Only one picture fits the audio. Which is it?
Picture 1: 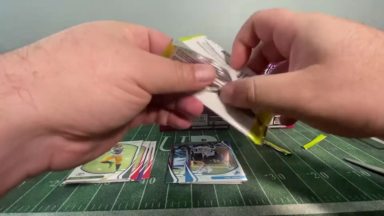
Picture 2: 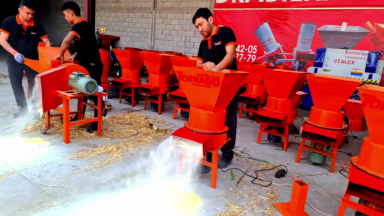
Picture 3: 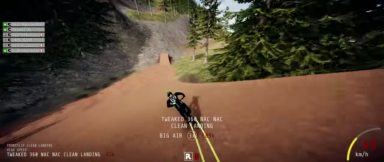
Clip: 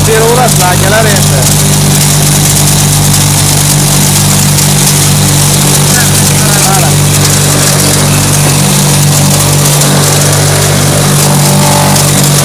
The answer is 2